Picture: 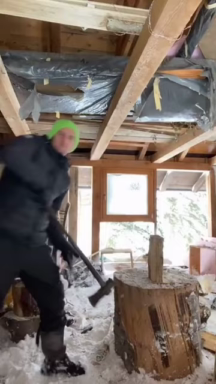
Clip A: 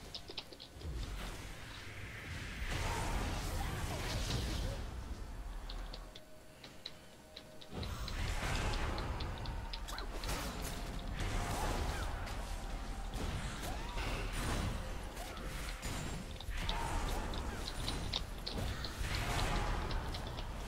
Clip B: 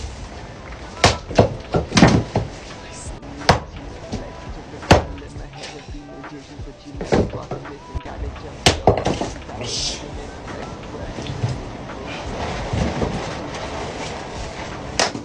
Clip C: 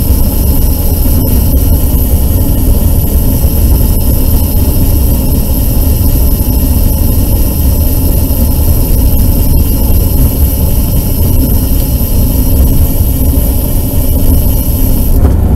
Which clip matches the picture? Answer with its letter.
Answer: B